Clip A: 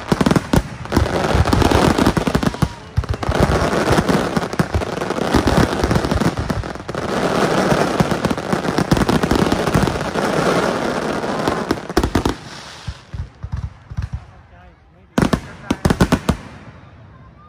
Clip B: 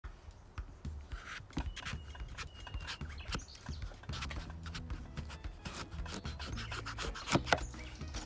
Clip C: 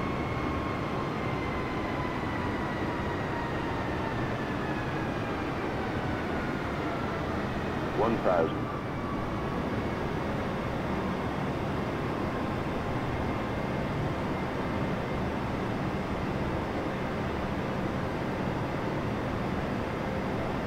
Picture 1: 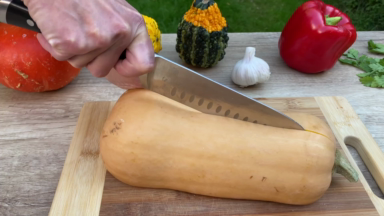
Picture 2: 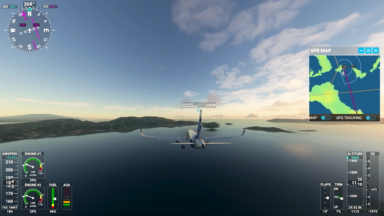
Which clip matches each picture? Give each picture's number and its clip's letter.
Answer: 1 B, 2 C